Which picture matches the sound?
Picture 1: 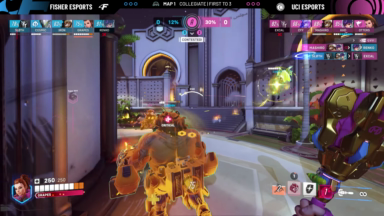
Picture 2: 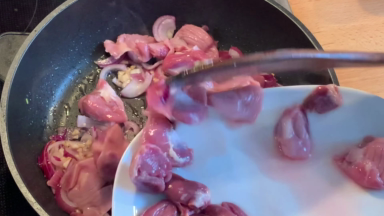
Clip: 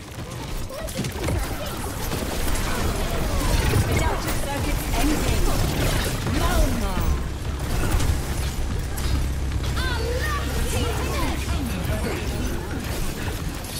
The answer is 1